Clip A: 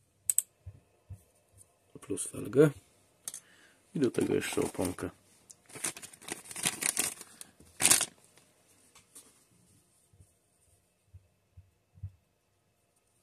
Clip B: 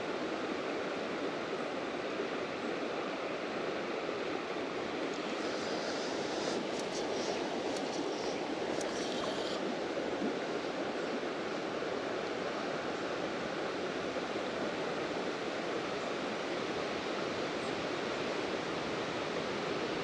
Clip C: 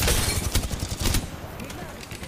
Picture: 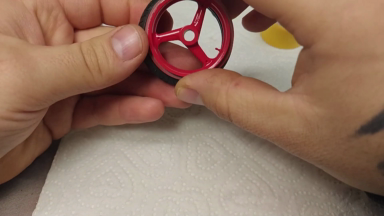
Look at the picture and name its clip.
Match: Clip A